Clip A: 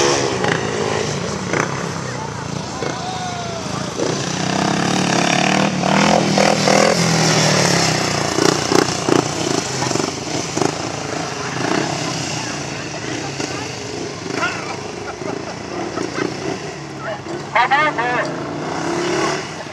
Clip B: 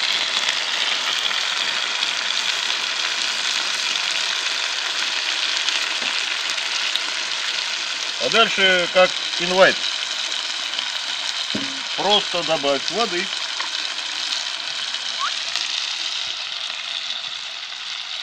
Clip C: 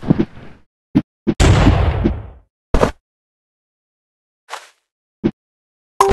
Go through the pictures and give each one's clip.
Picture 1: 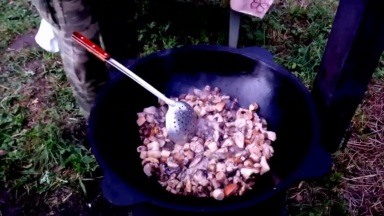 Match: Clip B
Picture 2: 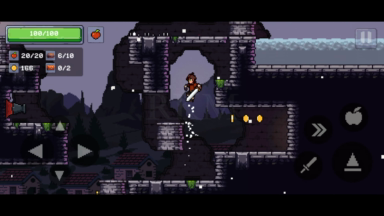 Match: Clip C